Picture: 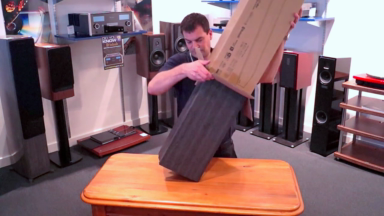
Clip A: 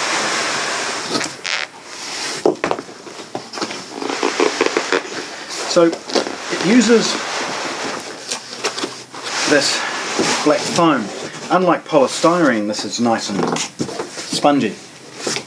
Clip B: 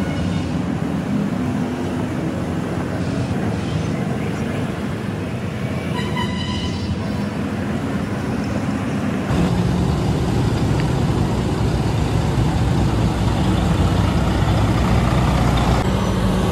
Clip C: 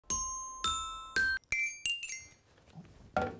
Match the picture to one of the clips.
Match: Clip A